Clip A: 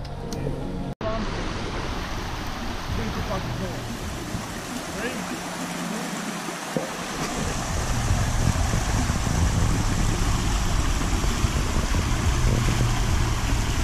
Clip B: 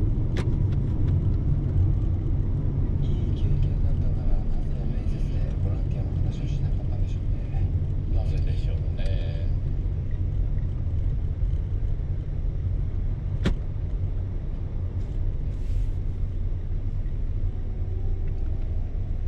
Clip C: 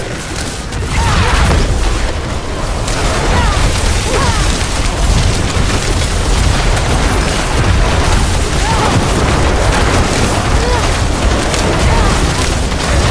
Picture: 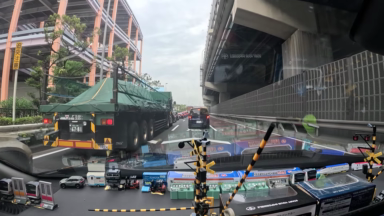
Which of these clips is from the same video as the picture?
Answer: B